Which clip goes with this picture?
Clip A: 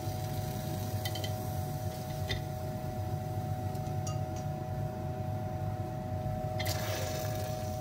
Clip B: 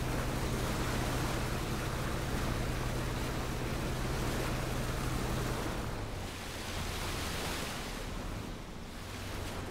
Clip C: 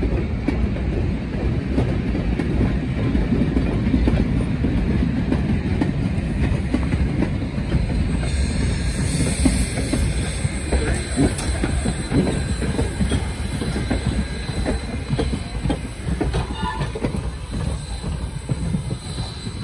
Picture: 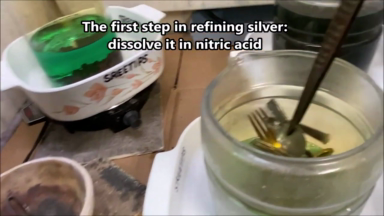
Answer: A